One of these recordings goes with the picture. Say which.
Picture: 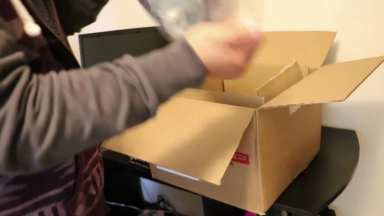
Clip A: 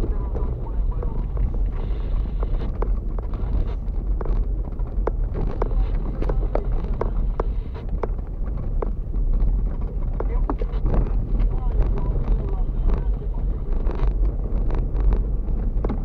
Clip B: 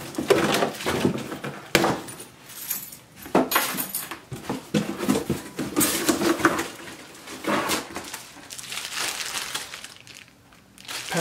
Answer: B